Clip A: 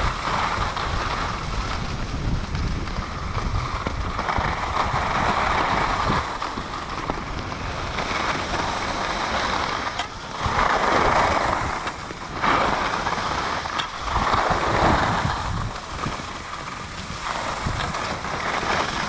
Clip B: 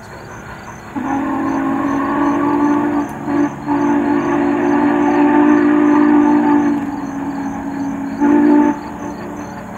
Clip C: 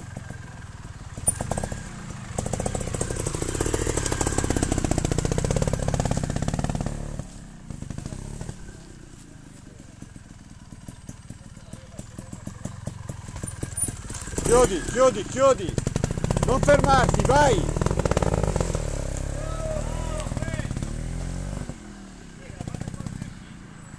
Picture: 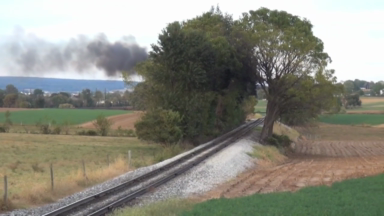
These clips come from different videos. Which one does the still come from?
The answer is B